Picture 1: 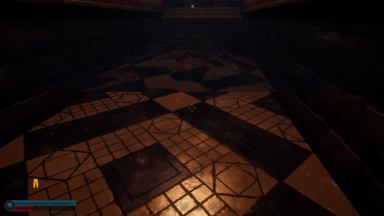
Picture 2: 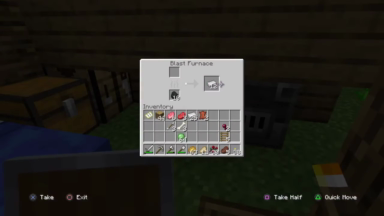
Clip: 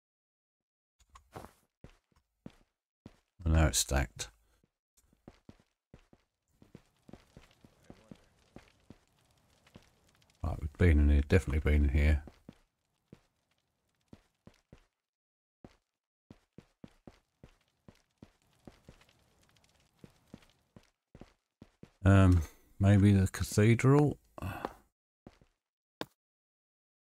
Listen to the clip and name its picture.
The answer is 1